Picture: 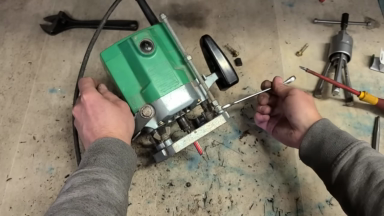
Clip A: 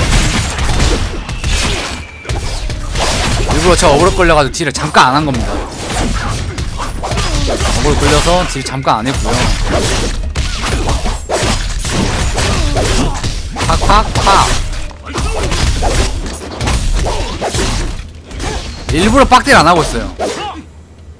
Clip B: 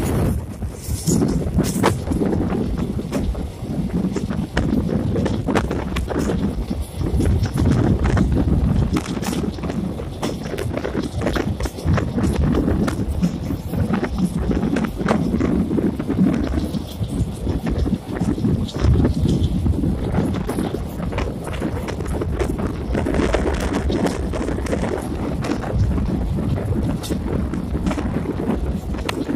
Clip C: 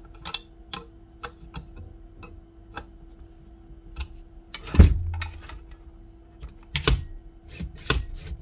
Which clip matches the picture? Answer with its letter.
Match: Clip C